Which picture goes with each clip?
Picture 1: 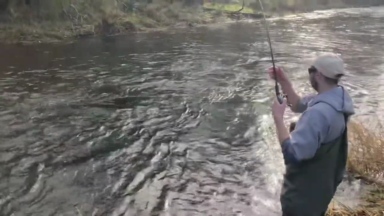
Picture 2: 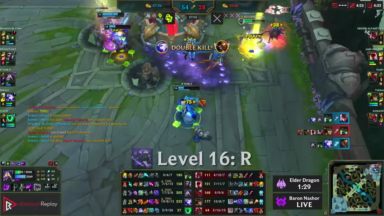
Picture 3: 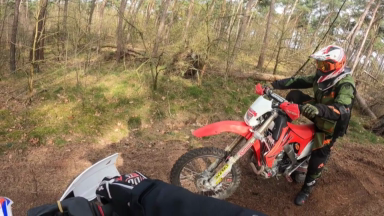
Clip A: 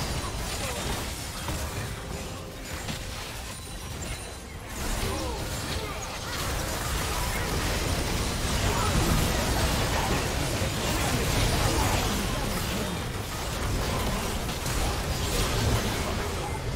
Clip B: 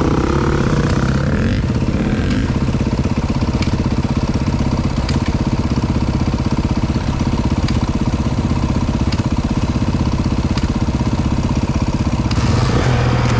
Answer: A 2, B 3